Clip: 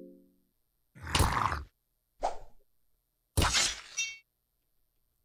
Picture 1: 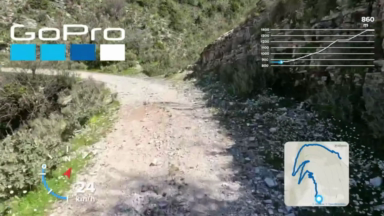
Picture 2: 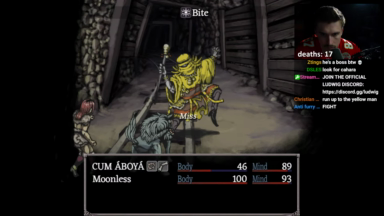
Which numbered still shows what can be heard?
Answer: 2